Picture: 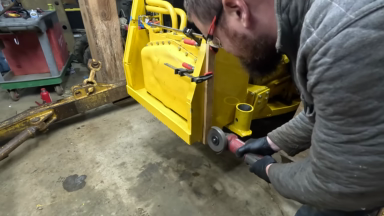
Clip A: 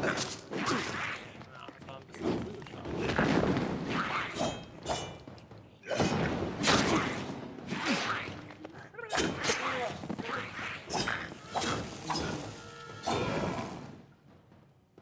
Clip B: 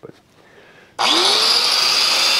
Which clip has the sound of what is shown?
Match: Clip B